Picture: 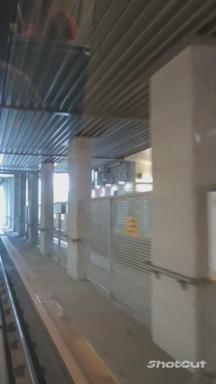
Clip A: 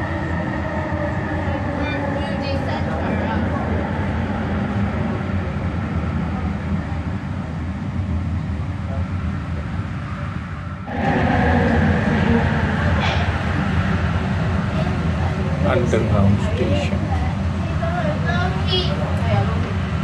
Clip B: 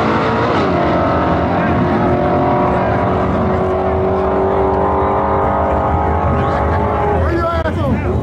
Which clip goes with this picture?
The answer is A